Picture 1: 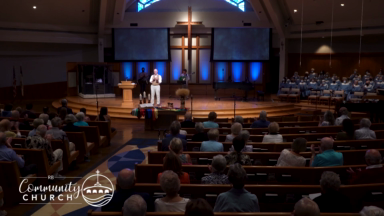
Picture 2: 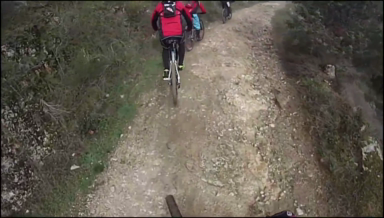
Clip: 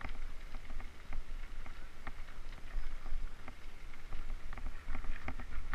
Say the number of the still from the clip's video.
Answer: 2